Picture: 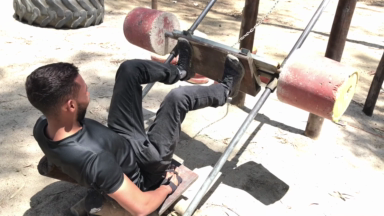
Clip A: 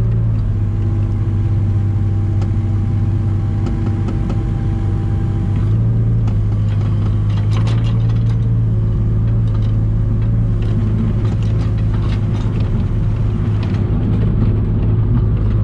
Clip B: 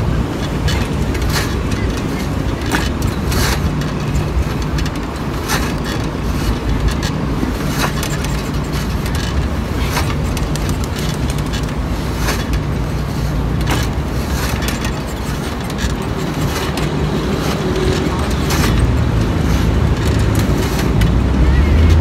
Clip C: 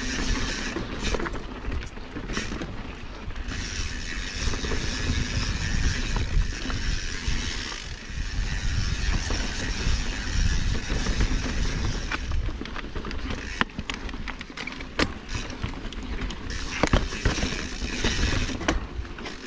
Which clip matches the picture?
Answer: B